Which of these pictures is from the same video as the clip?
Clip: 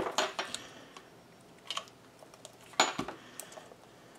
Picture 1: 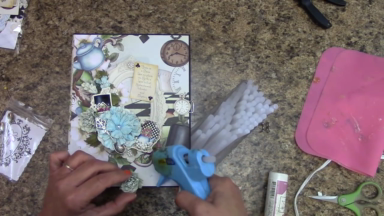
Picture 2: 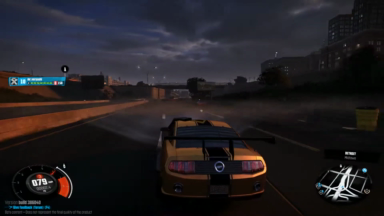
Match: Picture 1